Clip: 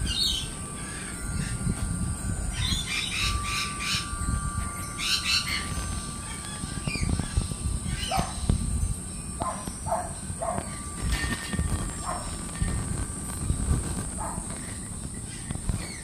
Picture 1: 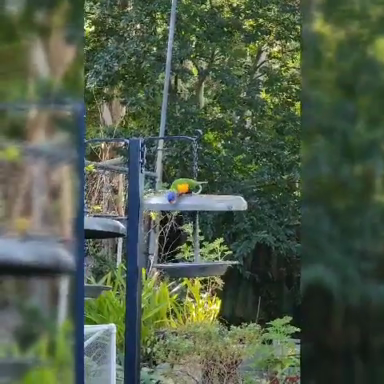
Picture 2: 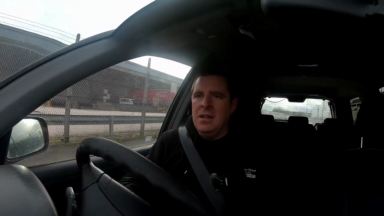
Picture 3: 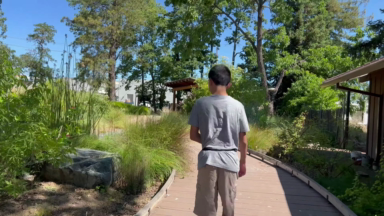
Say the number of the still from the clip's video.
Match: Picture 1